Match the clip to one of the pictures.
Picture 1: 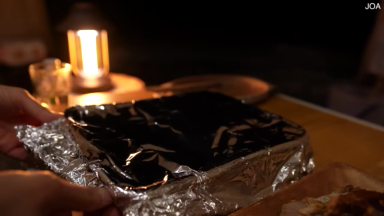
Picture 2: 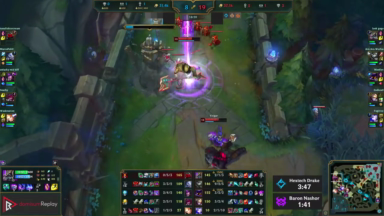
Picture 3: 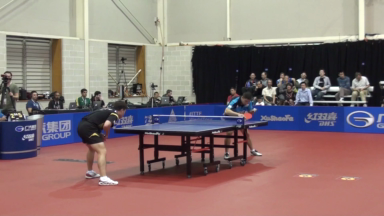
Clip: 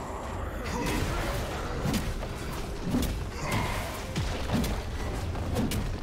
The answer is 2